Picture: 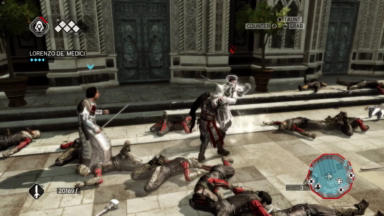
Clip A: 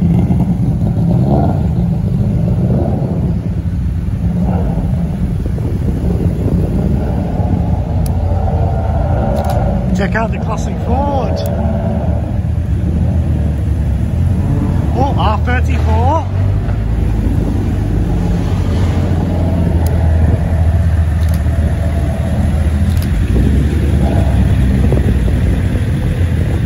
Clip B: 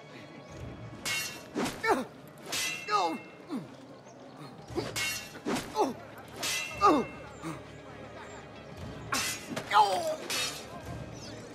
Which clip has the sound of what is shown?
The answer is B